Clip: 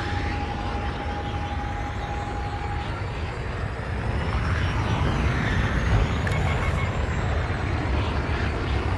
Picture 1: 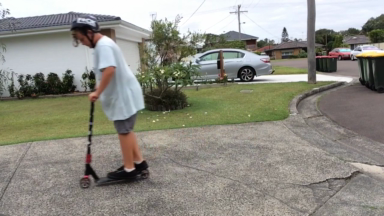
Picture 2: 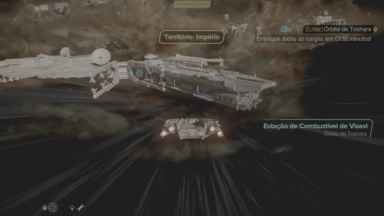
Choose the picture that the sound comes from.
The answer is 2